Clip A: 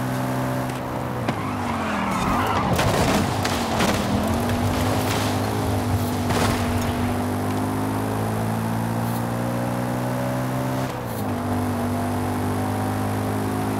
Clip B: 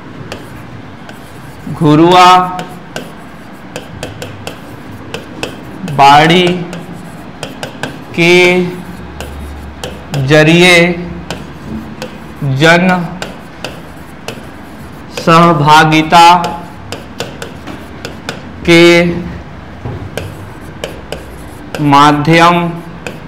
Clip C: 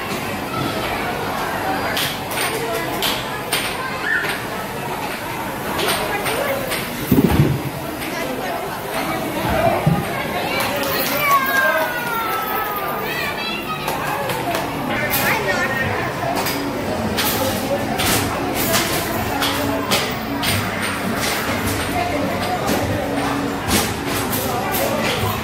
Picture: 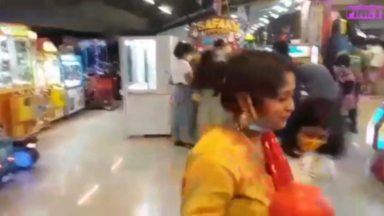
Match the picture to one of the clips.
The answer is C